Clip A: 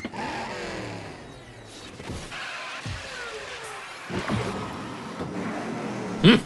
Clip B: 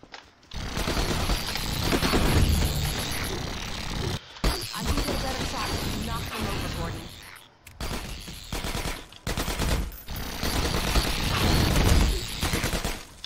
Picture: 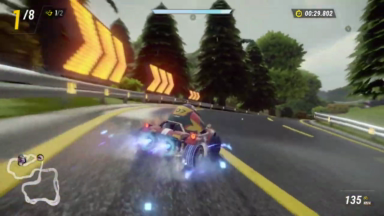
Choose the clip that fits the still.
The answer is A